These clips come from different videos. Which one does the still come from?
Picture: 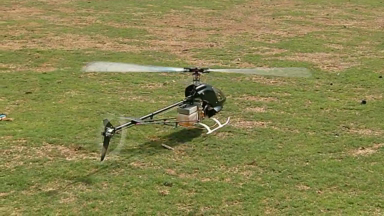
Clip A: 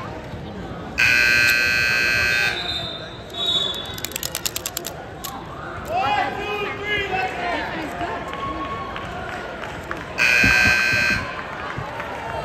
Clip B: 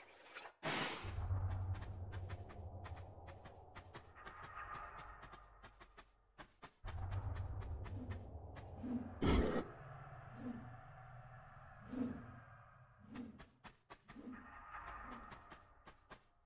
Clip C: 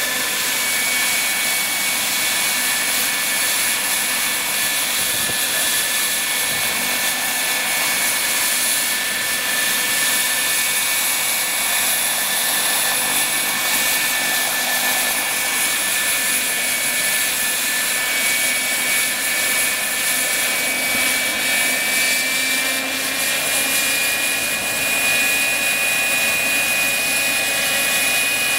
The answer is C